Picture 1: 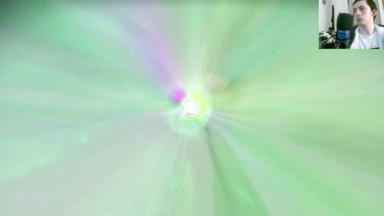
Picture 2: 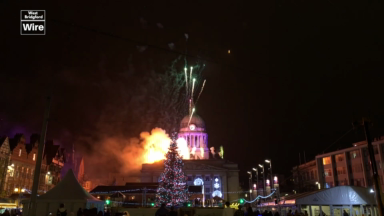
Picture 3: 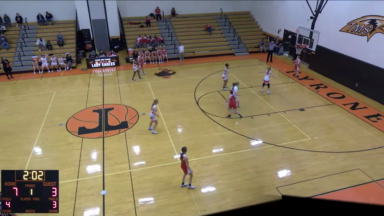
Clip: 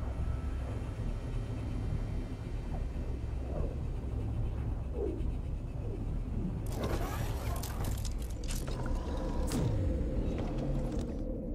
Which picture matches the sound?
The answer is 1